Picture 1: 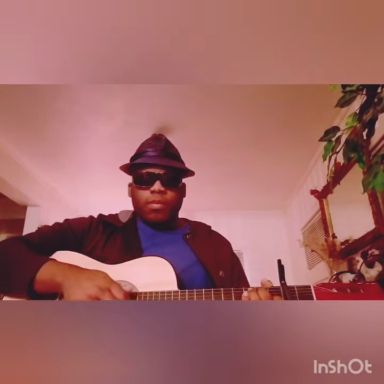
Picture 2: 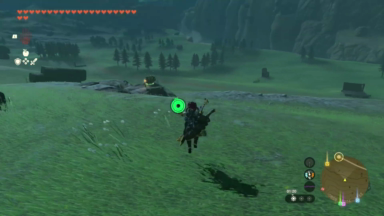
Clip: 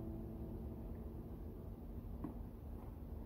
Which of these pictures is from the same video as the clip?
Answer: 1